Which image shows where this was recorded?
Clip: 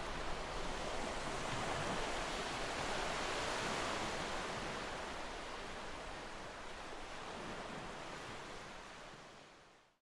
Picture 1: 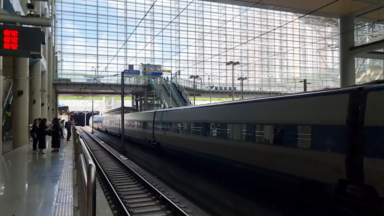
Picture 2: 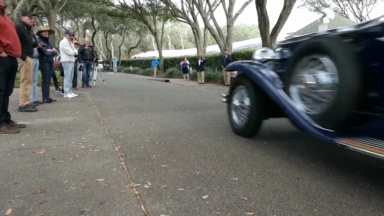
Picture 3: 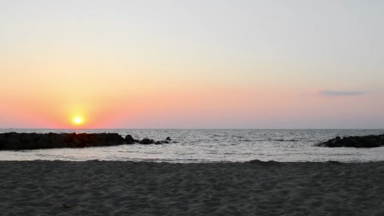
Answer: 3